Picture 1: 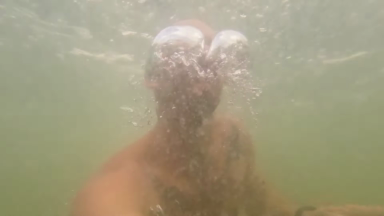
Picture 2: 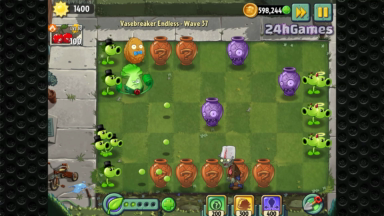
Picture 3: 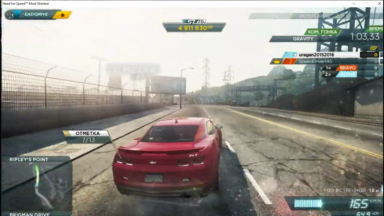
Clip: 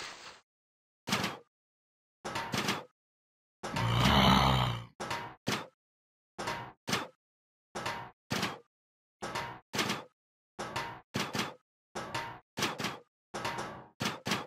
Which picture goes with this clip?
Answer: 2